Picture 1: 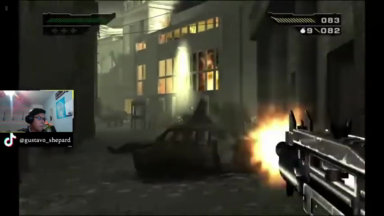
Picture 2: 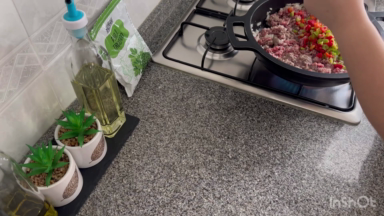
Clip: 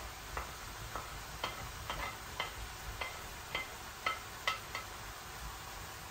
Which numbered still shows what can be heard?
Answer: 2